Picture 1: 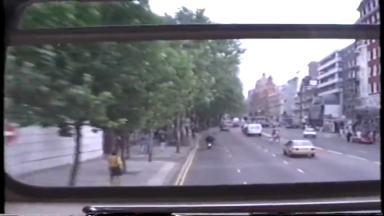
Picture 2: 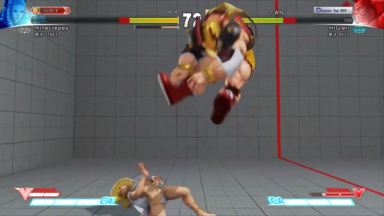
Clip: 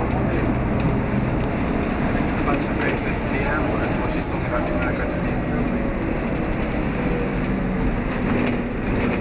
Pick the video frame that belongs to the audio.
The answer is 1